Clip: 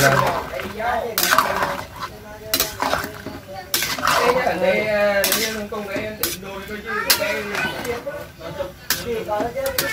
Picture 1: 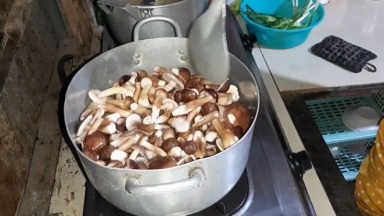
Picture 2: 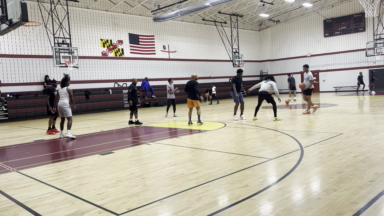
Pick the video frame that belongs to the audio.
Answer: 1